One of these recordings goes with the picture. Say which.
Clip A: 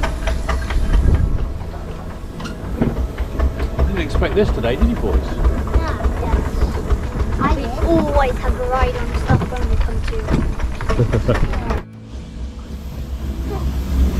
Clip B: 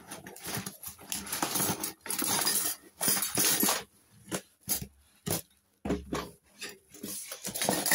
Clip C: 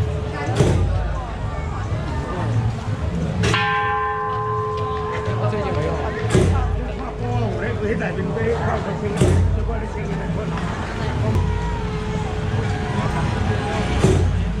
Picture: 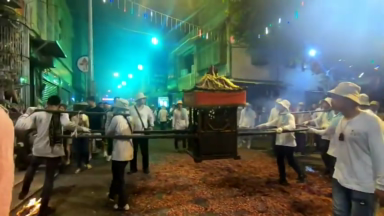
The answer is C